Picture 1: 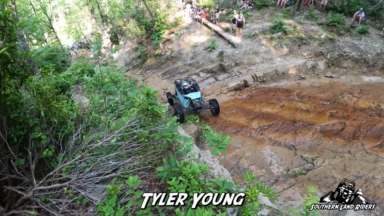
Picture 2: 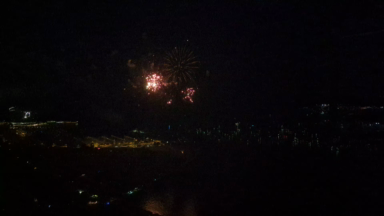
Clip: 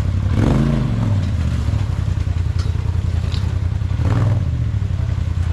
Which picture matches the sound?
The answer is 1